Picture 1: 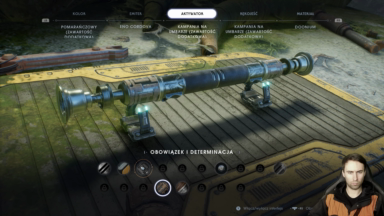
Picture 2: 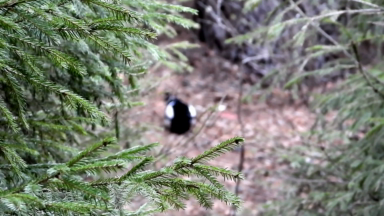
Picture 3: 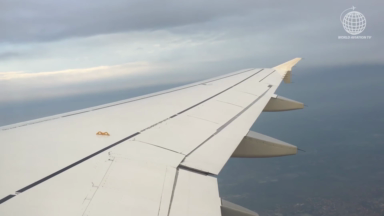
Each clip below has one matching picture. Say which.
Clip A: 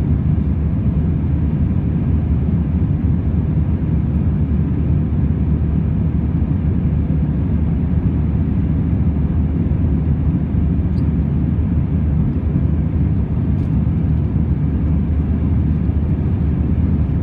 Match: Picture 3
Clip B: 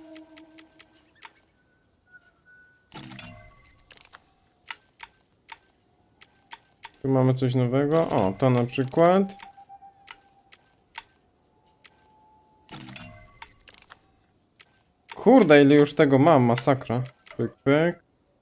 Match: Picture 1